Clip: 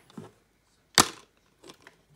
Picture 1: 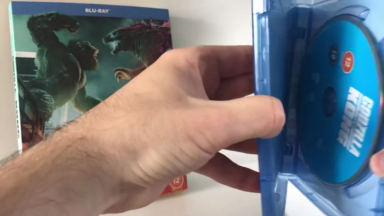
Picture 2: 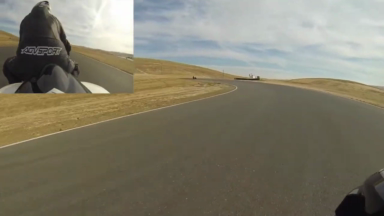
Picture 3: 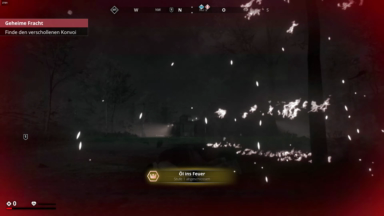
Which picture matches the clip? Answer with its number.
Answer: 1